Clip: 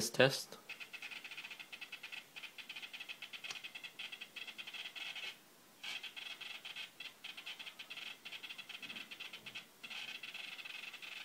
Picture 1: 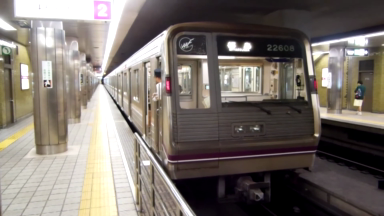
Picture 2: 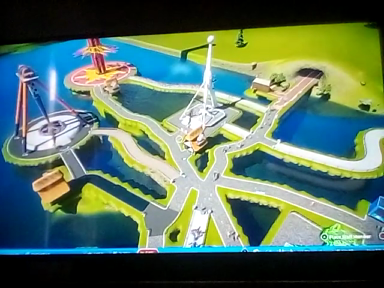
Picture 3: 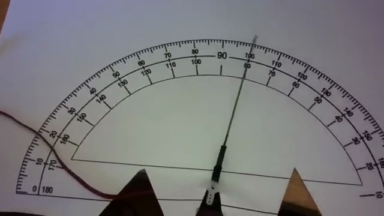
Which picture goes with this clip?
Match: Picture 3